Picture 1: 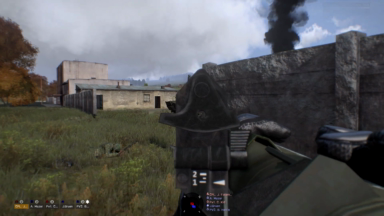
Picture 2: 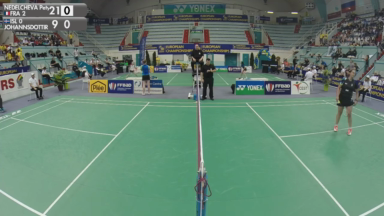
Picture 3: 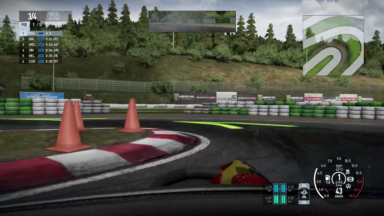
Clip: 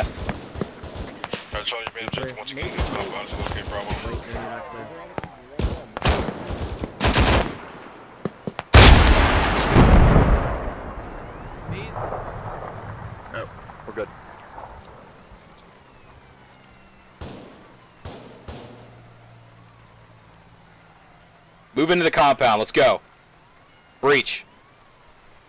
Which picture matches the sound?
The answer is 1